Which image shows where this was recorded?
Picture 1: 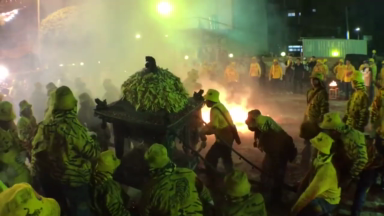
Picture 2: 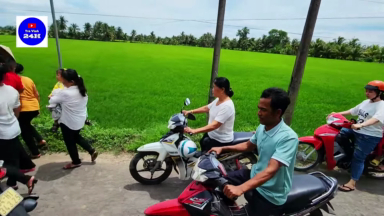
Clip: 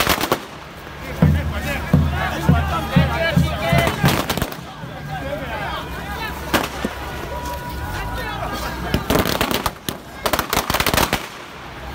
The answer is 1